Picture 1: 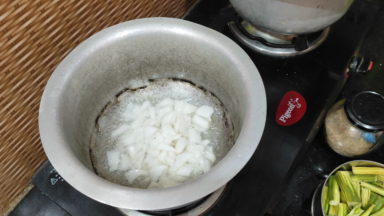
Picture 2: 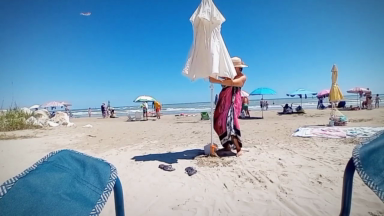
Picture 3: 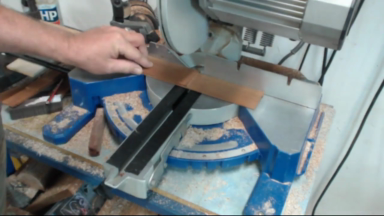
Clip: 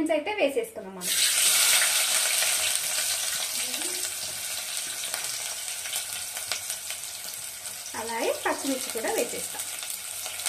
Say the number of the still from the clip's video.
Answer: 1